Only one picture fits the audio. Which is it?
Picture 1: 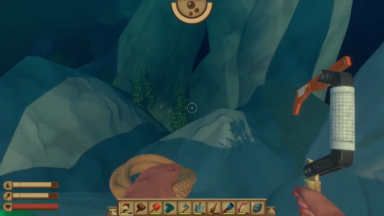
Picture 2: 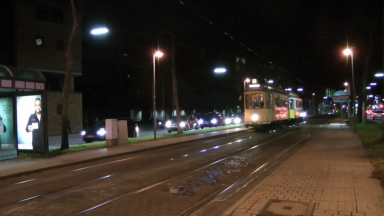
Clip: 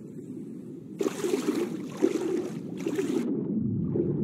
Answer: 1